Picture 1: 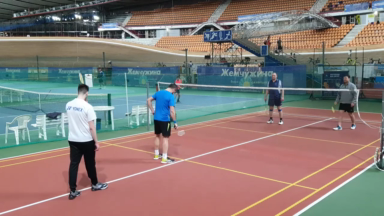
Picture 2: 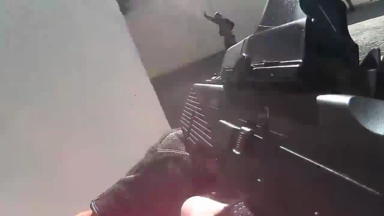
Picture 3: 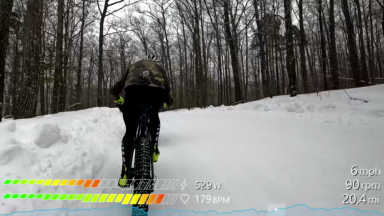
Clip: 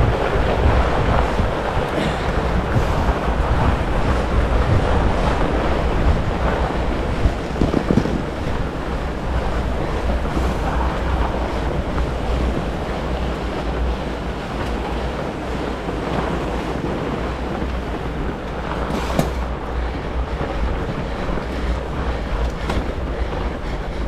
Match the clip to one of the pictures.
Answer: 3